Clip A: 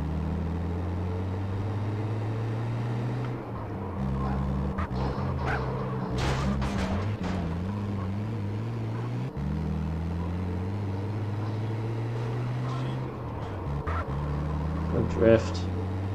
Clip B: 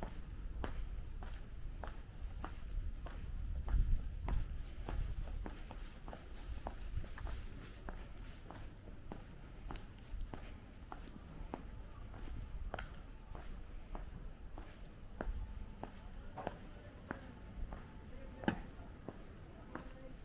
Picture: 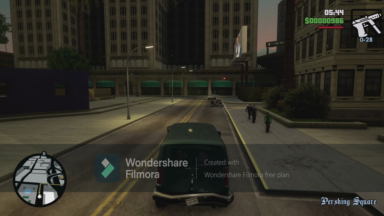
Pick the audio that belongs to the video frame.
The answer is A